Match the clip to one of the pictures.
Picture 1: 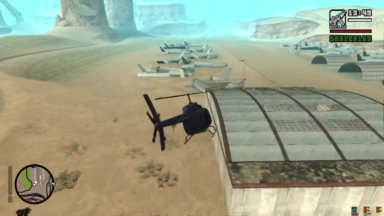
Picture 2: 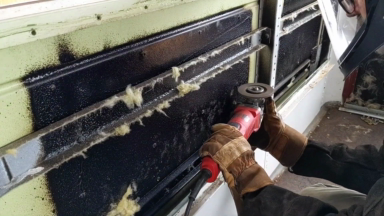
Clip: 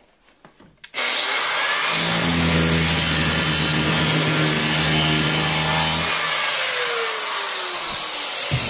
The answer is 2